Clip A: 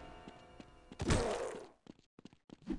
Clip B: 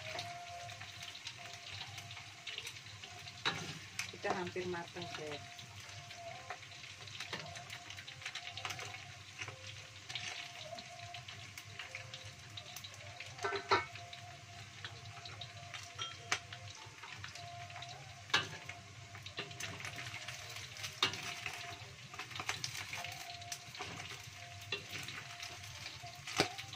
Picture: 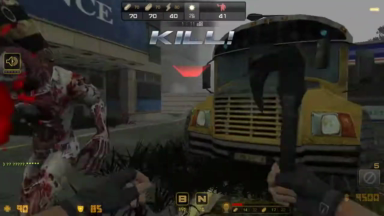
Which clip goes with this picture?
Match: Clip A